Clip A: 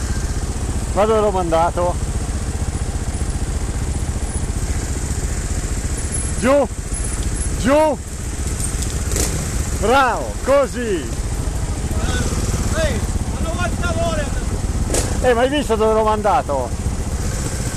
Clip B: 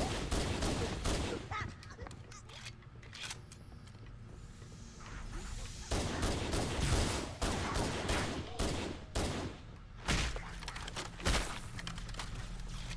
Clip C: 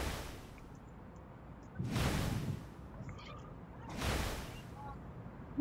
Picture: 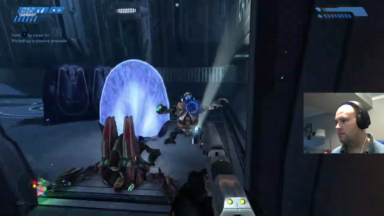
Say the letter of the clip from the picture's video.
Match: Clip B